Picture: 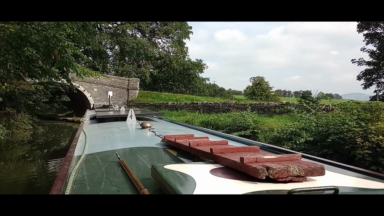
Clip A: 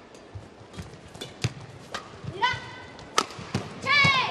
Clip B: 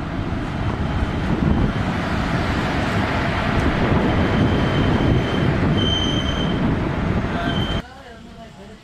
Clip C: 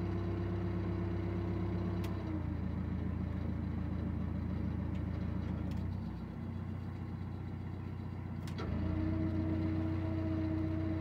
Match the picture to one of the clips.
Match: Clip C